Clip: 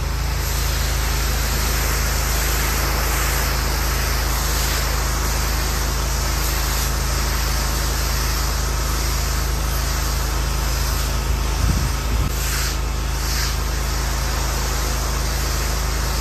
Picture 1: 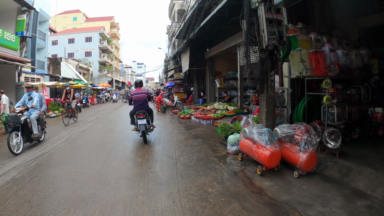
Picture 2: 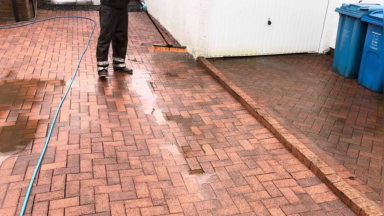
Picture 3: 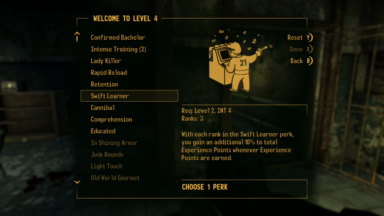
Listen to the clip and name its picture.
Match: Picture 2